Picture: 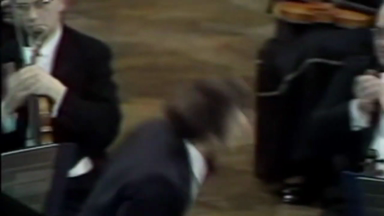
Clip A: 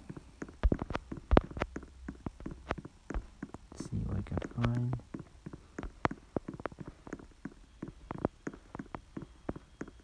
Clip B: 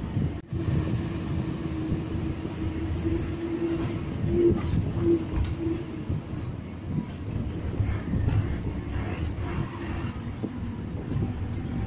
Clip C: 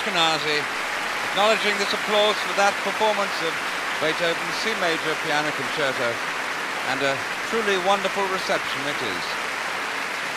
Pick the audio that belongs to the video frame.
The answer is C